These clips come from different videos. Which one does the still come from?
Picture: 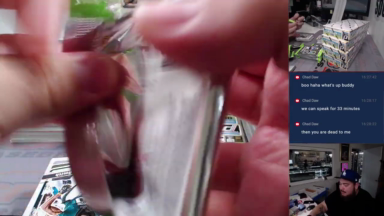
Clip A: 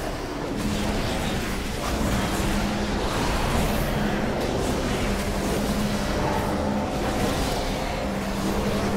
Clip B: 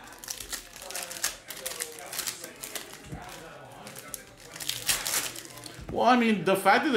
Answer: B